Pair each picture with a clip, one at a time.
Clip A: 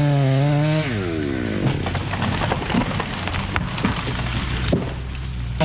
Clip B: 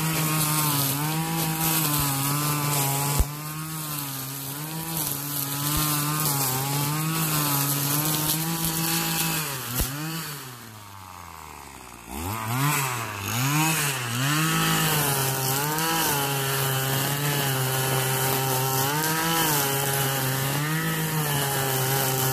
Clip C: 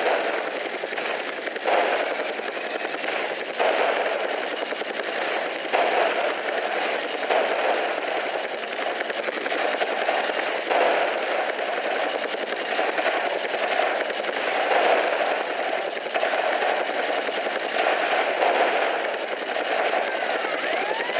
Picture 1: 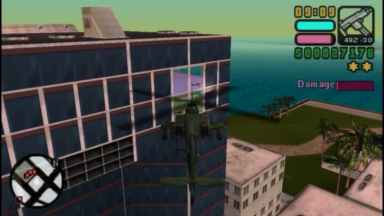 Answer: C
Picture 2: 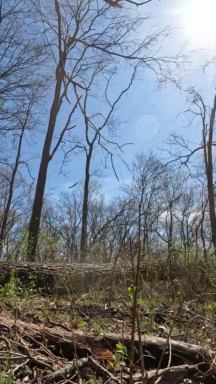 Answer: A